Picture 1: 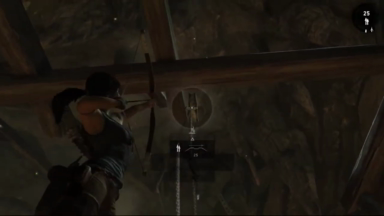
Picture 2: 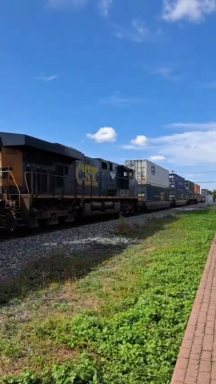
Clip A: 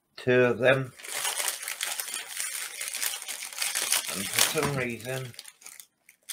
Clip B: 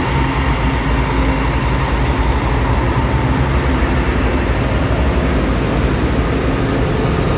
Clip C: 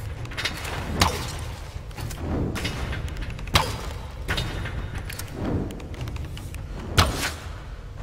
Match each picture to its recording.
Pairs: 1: C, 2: B